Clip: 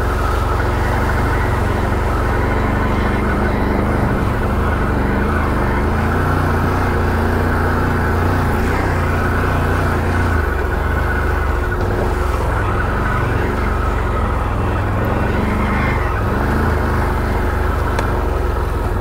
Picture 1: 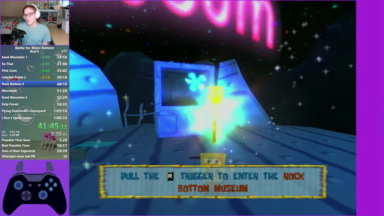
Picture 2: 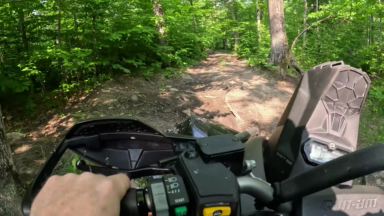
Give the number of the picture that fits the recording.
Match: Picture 2